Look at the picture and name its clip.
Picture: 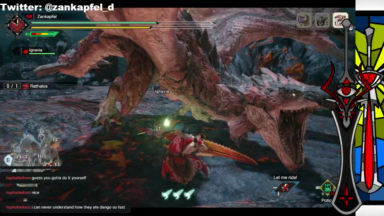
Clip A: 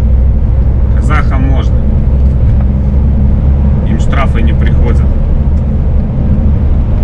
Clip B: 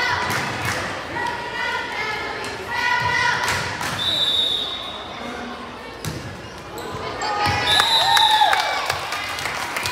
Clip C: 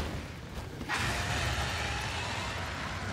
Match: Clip C